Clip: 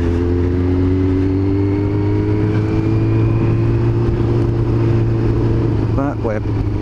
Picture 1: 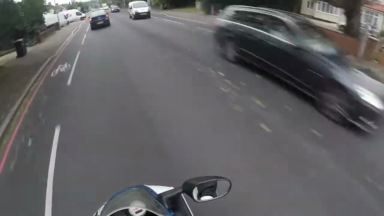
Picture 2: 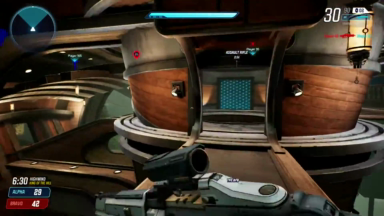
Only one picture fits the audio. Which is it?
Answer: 1